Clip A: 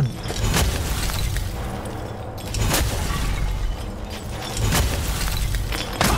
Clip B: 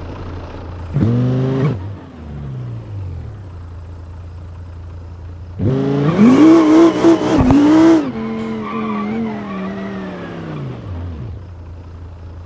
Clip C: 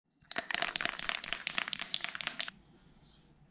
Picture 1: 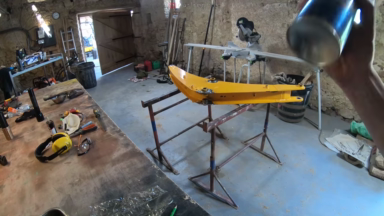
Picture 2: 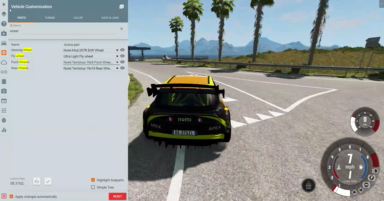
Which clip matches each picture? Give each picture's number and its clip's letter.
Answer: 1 C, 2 B